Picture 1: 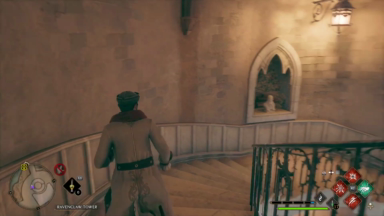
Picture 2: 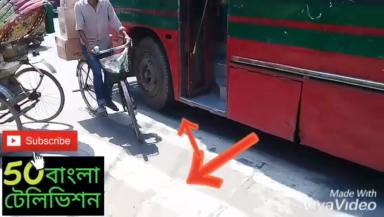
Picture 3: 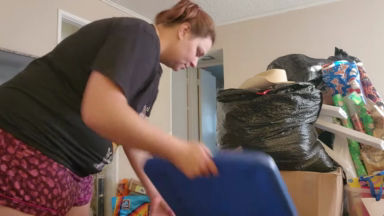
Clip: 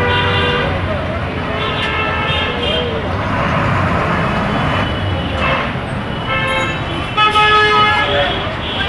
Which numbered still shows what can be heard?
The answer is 2